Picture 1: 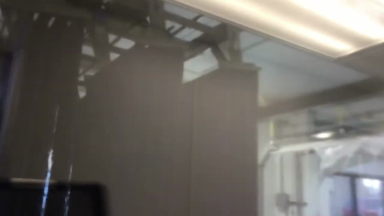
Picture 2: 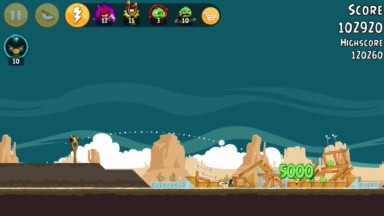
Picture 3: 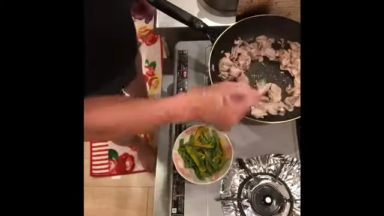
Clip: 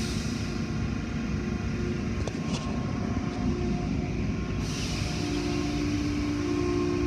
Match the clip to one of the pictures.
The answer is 1